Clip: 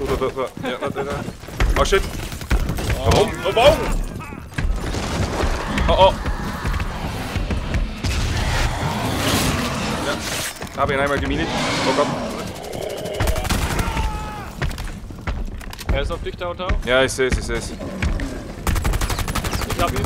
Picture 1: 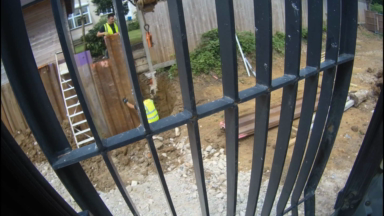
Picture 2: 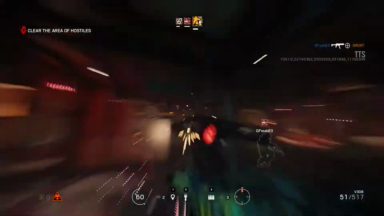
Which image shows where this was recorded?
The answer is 2